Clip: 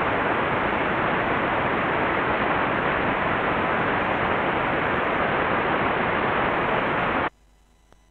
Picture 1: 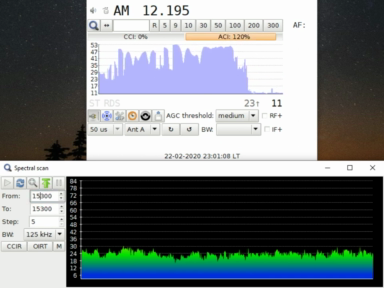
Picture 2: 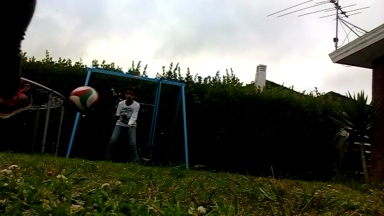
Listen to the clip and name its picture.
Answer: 1